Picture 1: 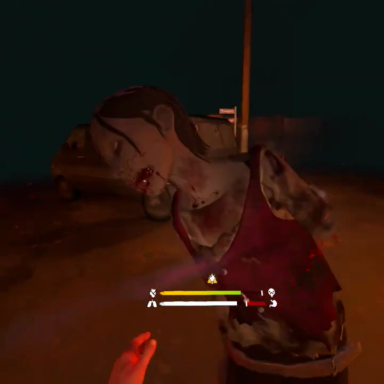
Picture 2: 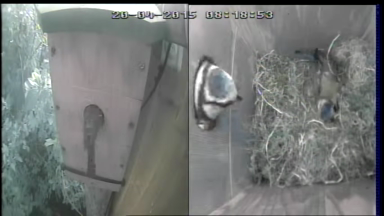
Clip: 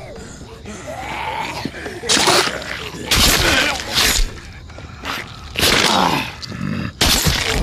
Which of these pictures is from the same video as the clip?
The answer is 1